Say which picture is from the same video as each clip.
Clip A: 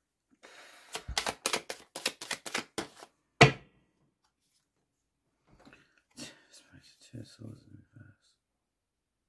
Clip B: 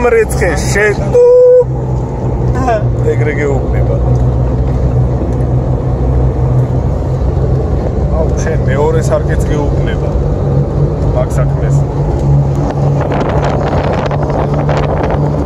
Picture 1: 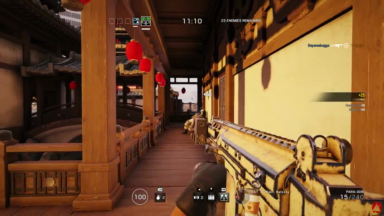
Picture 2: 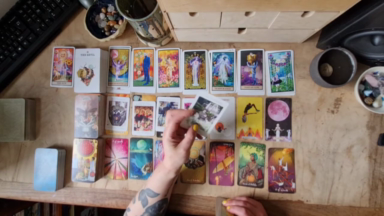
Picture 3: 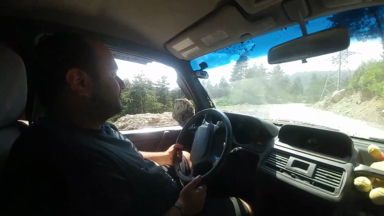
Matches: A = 2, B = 3